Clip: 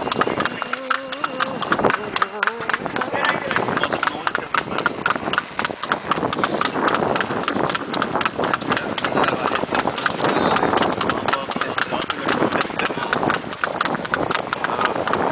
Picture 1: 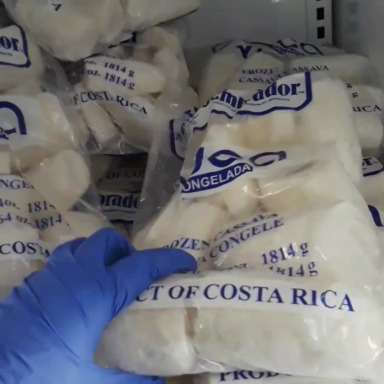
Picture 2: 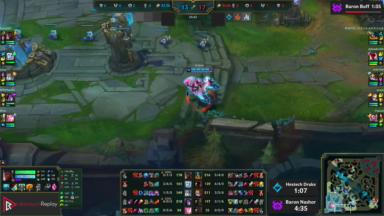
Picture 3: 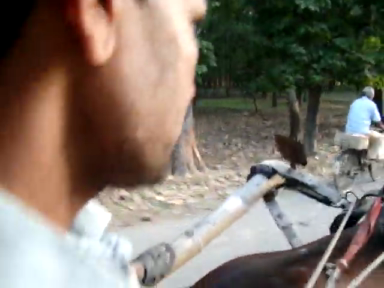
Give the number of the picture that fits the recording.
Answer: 3